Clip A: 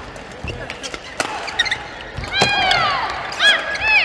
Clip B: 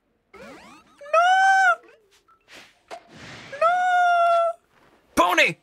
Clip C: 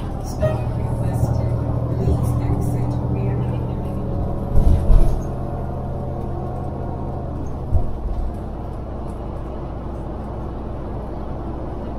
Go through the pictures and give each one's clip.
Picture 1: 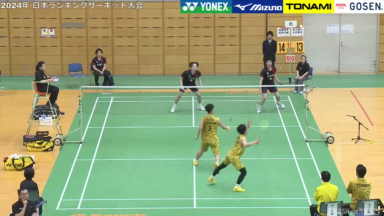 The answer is A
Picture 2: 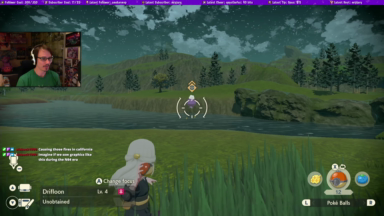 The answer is B